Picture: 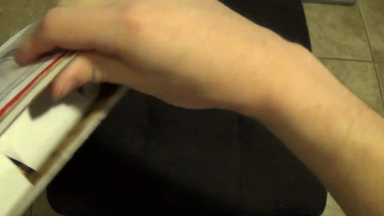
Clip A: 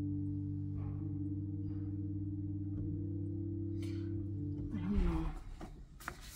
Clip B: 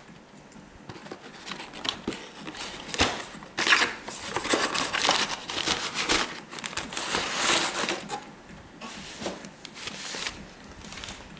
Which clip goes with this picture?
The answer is B